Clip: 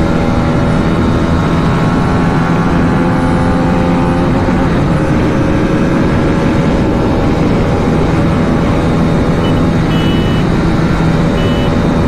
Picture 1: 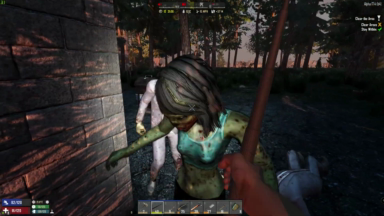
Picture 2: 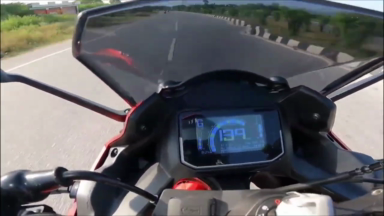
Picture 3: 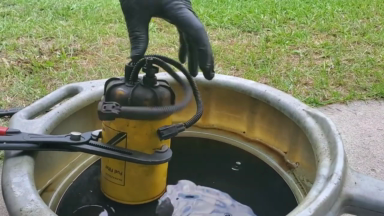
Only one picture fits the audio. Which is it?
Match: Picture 2